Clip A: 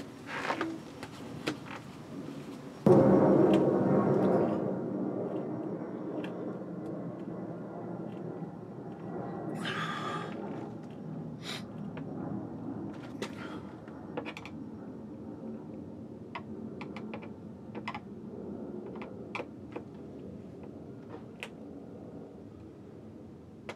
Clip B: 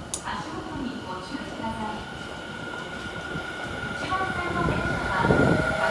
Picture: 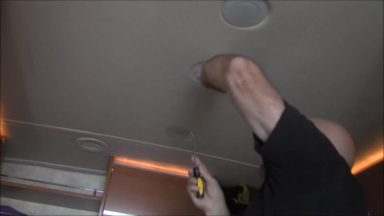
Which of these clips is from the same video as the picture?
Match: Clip A